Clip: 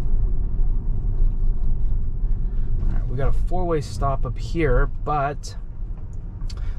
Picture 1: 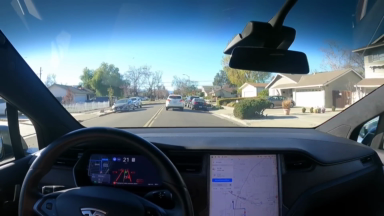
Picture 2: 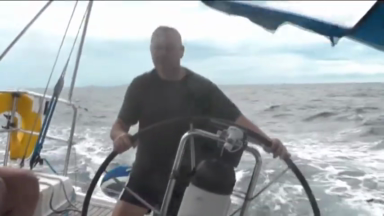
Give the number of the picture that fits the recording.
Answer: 1